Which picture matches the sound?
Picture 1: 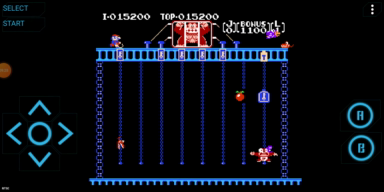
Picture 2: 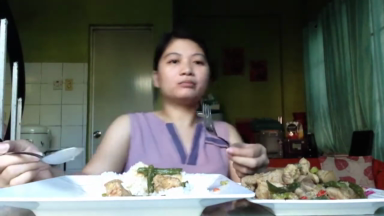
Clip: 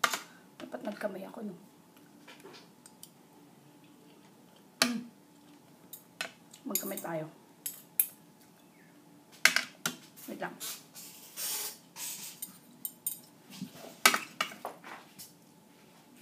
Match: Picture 2